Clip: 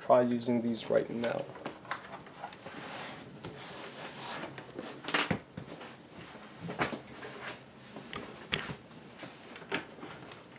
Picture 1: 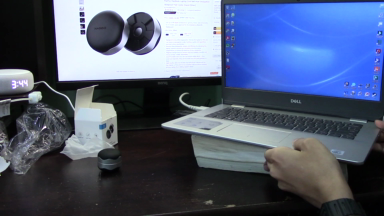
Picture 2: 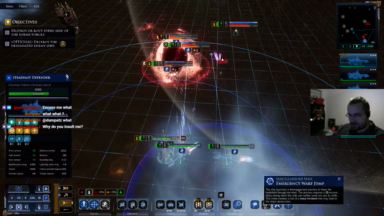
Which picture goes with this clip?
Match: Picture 1